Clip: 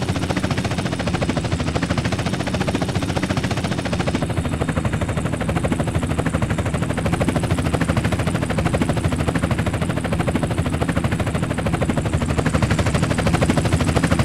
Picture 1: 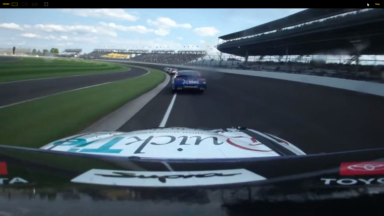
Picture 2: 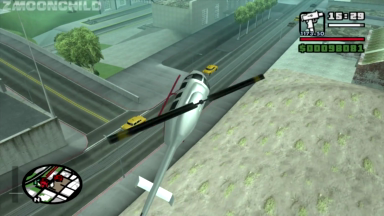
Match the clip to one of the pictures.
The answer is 2